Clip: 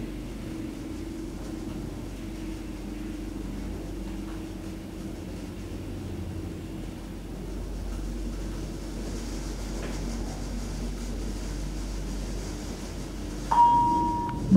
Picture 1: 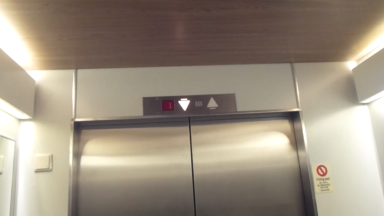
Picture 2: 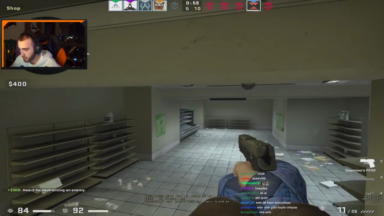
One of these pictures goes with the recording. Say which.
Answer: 1